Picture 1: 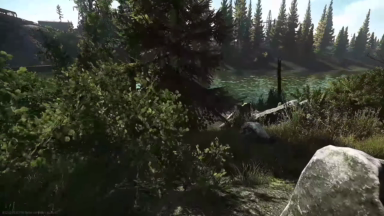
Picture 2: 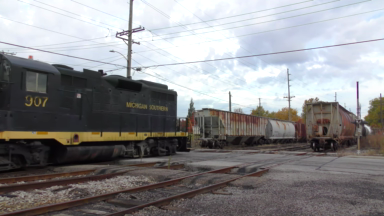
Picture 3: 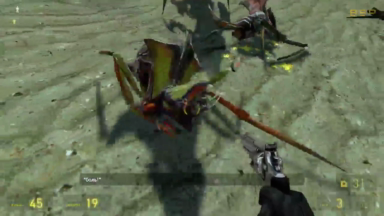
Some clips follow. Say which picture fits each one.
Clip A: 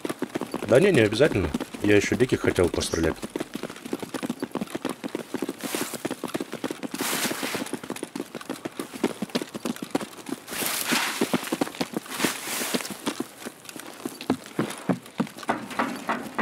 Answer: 1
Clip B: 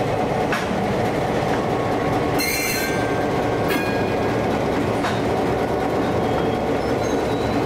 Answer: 2